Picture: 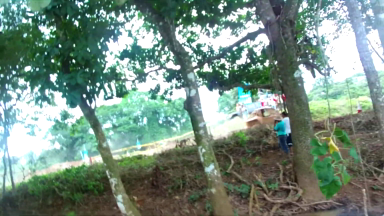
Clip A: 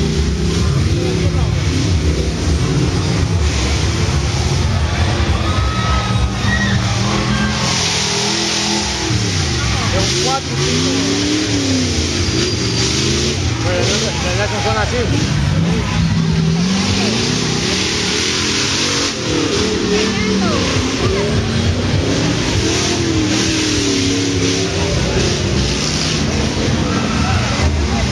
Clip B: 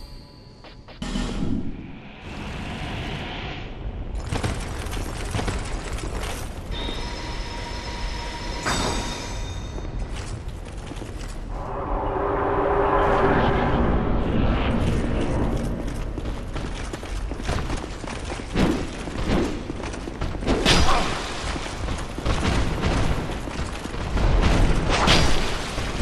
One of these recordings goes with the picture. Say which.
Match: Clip A